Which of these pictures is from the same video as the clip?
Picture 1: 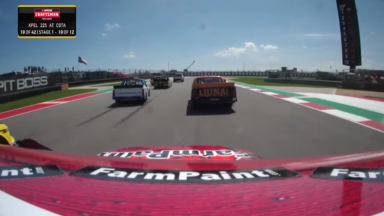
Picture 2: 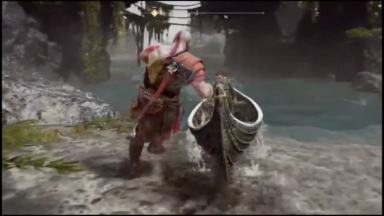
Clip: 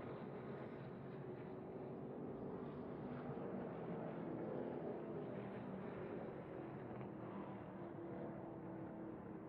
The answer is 1